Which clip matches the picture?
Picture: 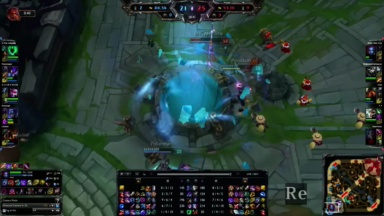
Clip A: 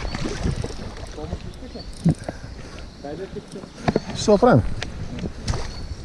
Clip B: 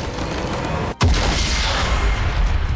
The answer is B